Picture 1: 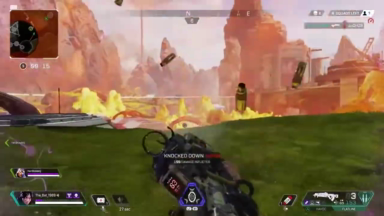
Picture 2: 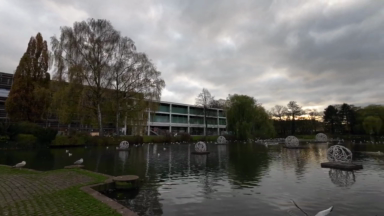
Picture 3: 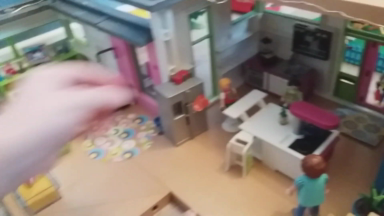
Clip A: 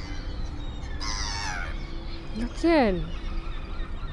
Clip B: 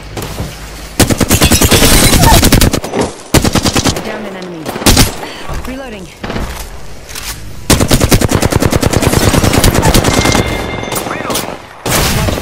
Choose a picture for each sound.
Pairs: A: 2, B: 1